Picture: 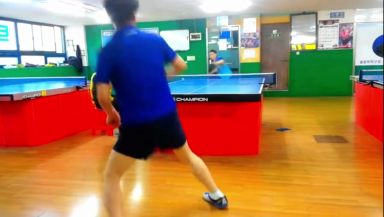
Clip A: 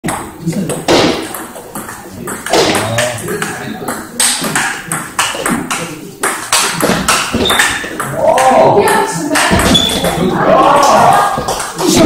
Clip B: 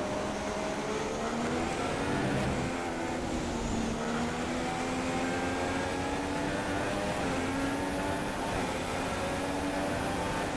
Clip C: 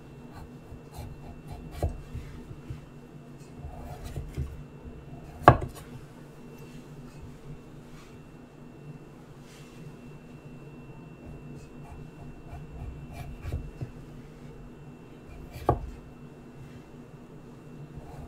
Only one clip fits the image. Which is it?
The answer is A